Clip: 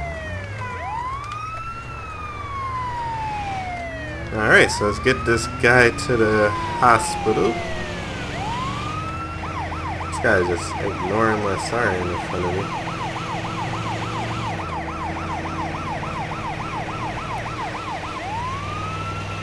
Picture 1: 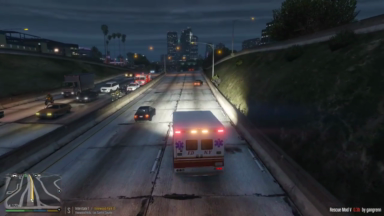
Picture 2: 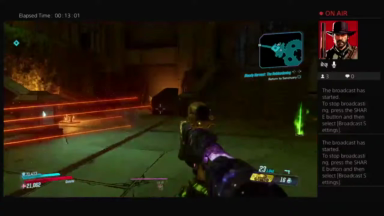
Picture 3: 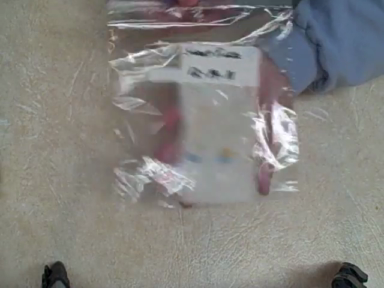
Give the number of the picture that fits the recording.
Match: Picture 1